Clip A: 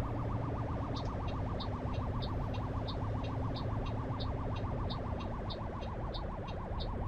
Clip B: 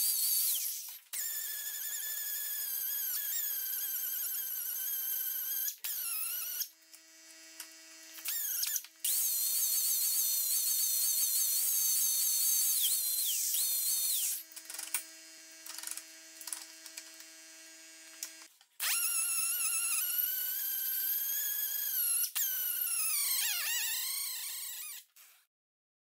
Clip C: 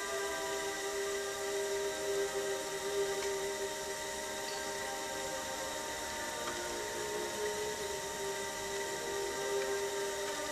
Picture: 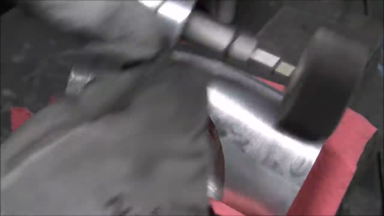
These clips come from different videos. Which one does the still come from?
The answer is B